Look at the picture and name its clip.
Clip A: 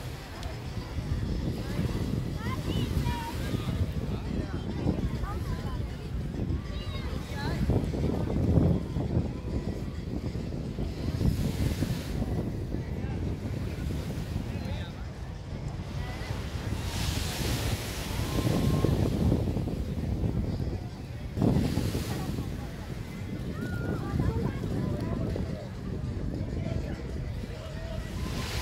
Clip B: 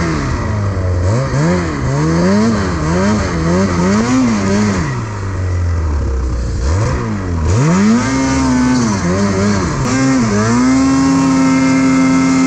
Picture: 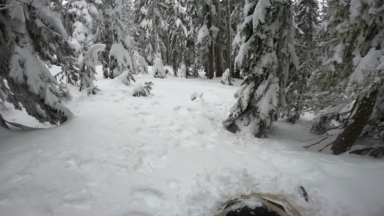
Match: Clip B